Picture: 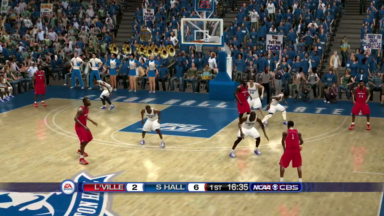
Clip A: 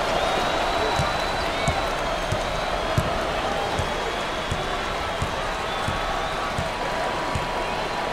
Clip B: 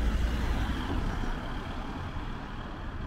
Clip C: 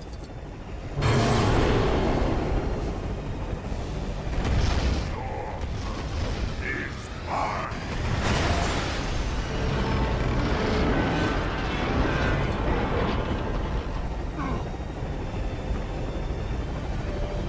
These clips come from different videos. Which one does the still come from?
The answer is A